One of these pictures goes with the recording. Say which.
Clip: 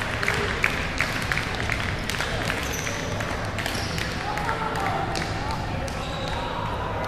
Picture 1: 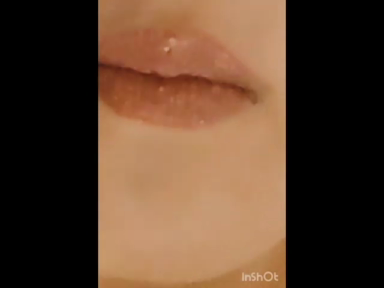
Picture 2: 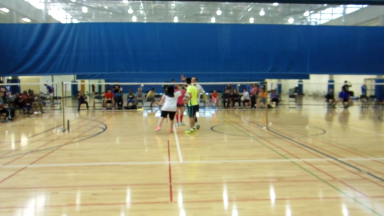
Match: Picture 2